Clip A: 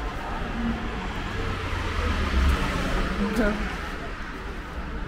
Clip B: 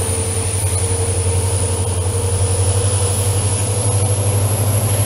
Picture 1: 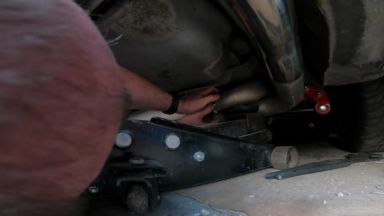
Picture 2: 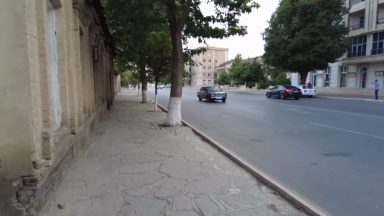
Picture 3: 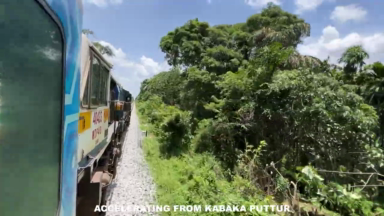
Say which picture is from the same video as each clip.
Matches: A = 2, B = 3